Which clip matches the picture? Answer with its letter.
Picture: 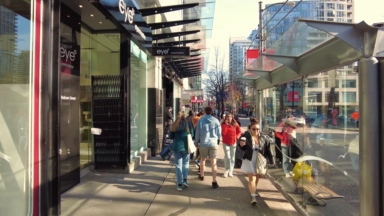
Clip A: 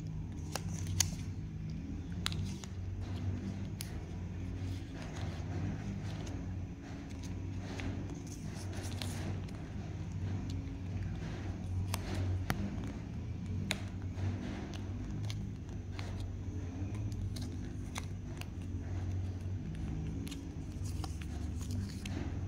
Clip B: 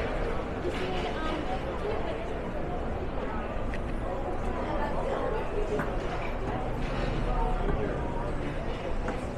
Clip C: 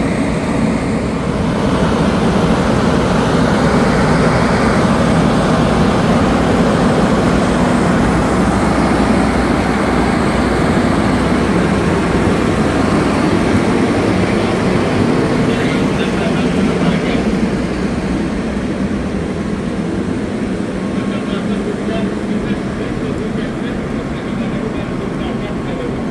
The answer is B